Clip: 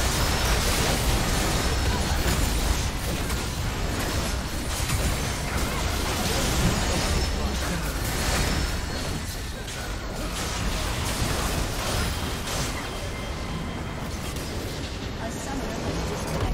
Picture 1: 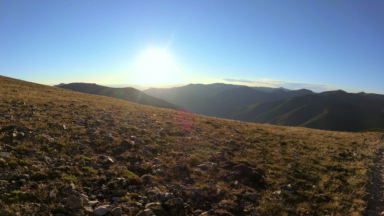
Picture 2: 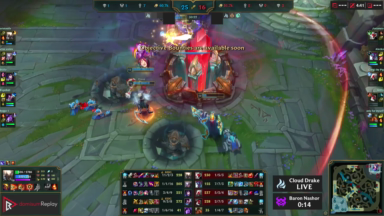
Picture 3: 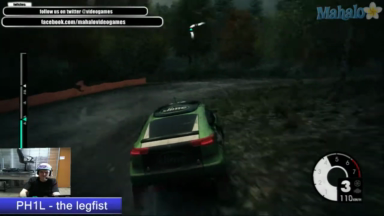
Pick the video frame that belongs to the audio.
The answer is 2